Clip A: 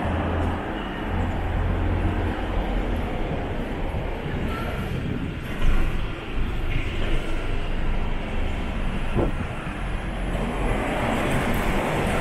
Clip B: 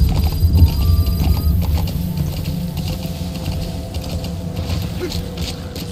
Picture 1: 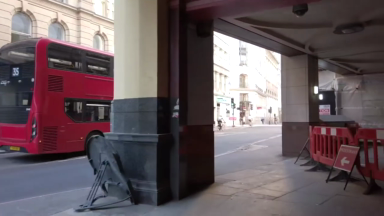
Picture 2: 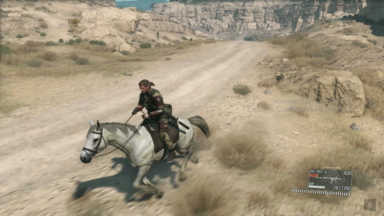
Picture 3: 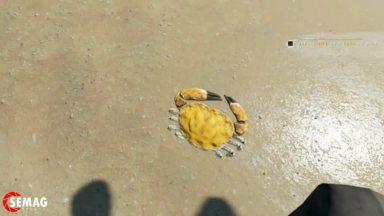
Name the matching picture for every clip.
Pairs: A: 1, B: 2